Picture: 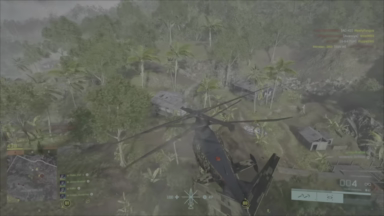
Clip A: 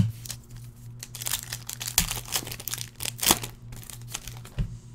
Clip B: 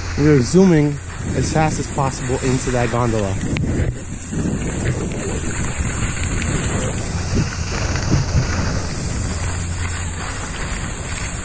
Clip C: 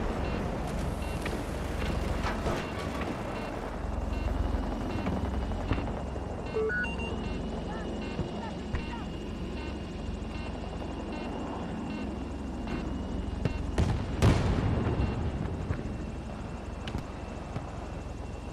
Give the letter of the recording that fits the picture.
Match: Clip C